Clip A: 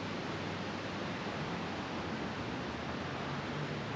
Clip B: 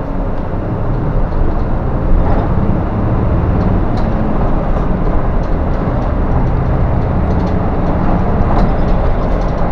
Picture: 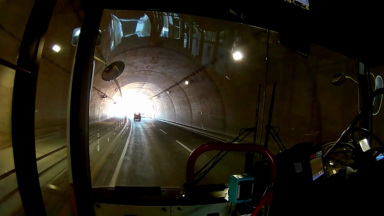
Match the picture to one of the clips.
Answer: B